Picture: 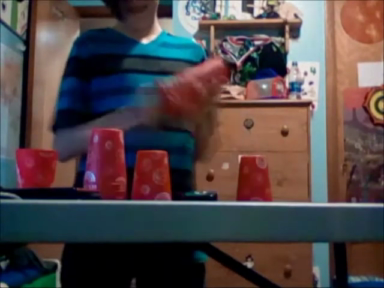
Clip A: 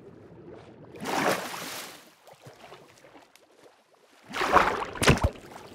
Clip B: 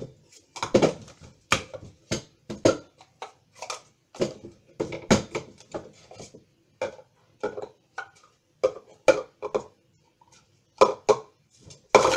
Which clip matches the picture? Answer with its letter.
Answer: B